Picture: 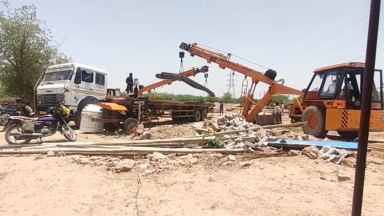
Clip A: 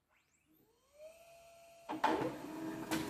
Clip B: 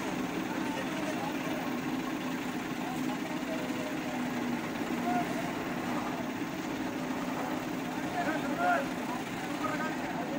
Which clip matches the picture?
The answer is B